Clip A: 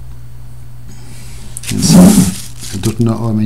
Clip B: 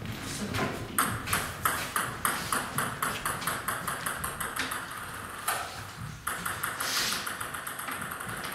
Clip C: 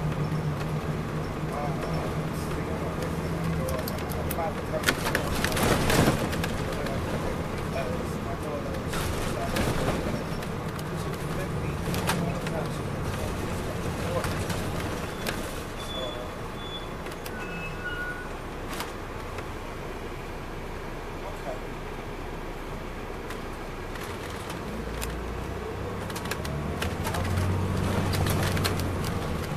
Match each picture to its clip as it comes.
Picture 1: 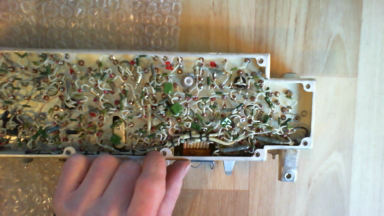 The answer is A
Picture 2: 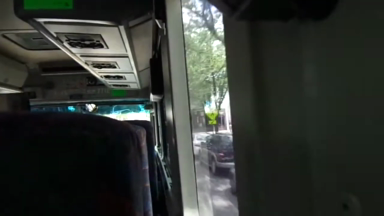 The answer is C